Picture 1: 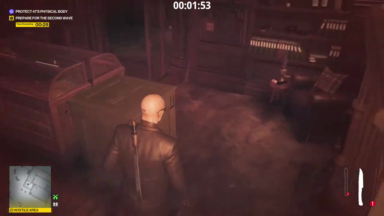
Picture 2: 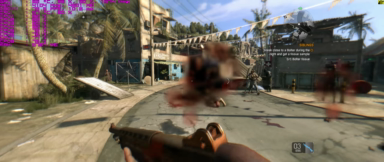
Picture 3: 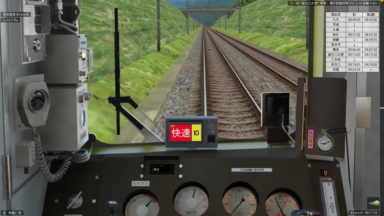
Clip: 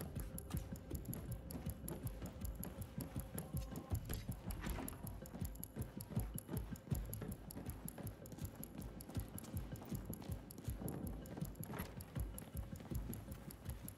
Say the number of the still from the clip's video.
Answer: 1